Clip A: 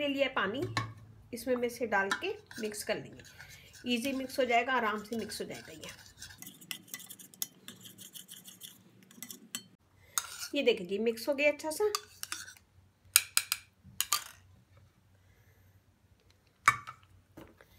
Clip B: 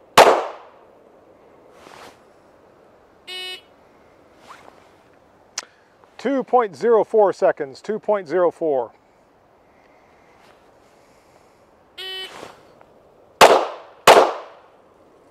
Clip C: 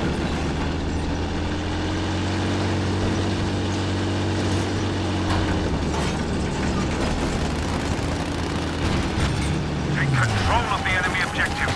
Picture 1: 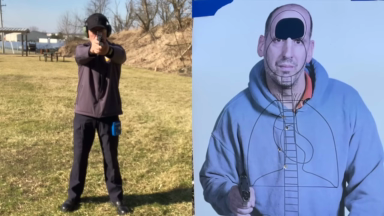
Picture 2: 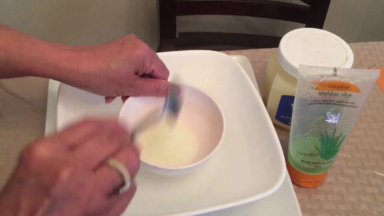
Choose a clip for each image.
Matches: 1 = B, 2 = A